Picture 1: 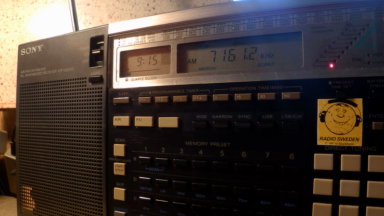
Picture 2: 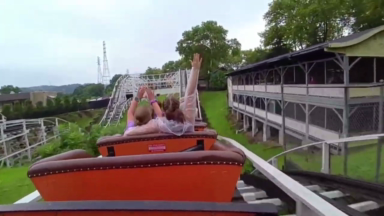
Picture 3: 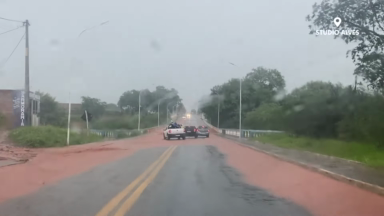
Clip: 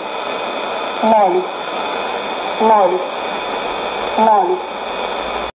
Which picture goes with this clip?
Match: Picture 1